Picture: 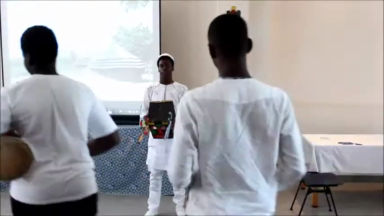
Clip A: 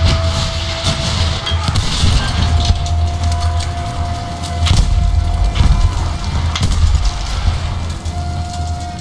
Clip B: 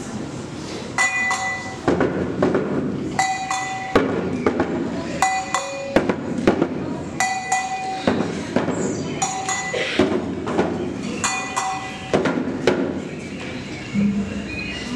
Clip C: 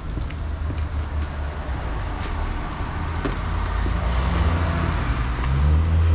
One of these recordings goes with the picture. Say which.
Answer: B